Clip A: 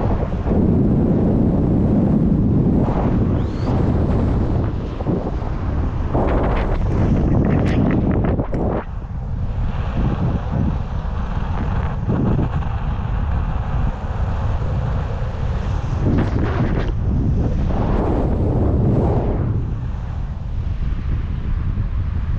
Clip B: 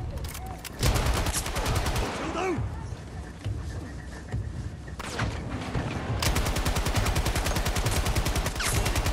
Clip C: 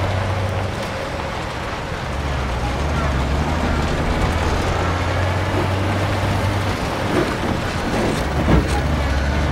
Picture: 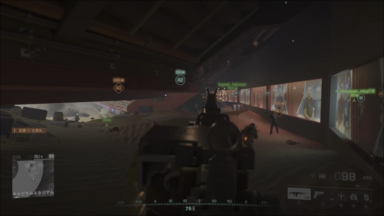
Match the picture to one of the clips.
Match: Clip B